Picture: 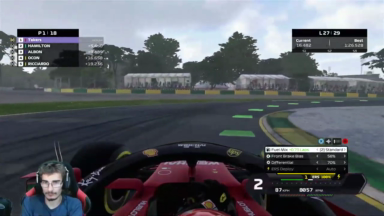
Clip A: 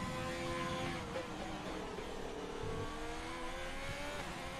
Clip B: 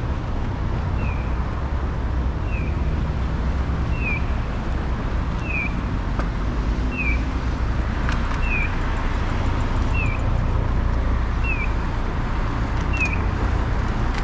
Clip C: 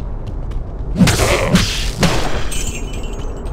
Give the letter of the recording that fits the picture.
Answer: A